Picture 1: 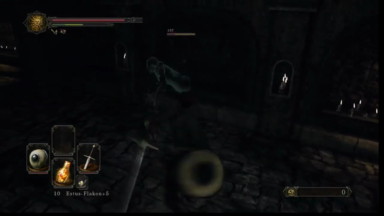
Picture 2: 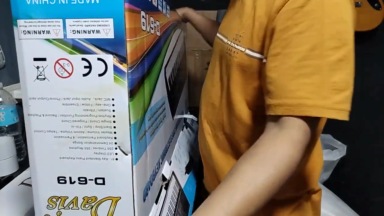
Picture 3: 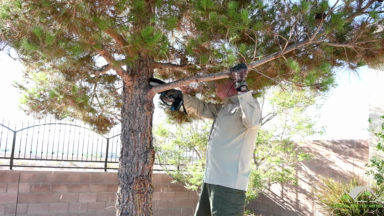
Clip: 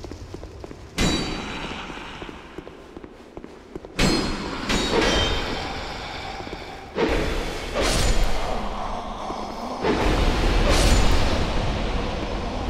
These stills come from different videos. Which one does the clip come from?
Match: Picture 1